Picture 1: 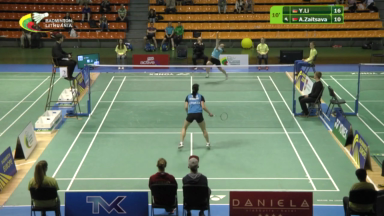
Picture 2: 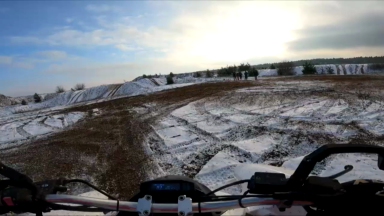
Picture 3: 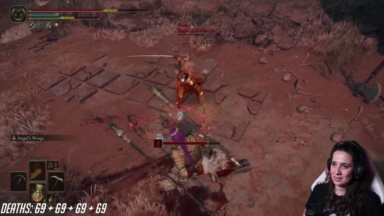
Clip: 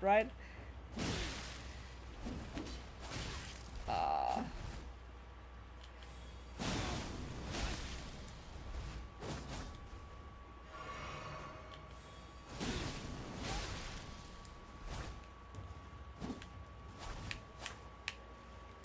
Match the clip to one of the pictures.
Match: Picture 3